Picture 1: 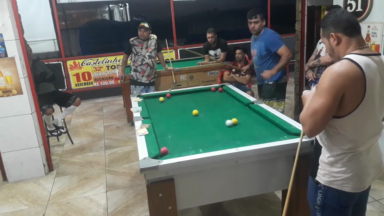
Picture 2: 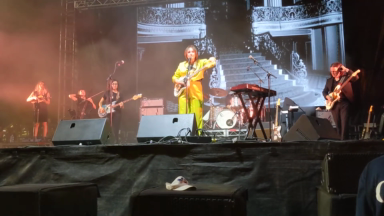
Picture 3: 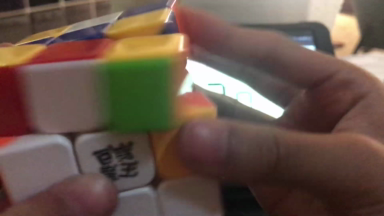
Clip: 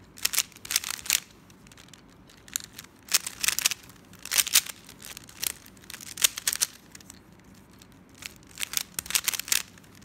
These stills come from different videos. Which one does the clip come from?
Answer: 3